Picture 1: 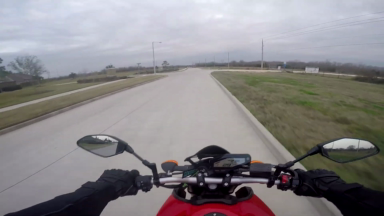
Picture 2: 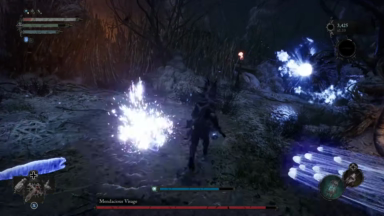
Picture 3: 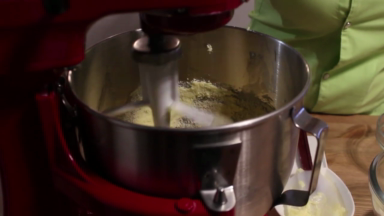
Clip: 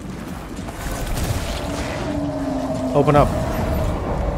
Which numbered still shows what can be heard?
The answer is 2